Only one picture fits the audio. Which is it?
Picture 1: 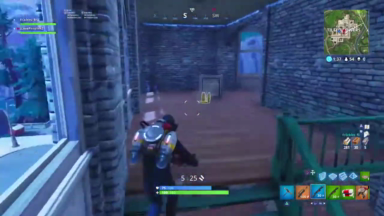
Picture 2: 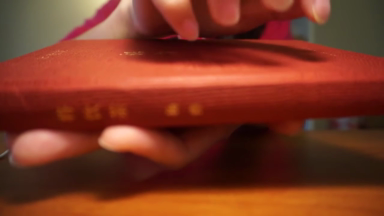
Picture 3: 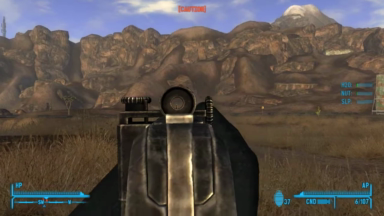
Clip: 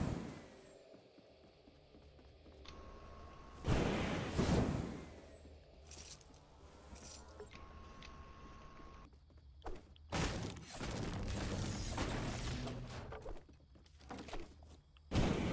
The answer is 1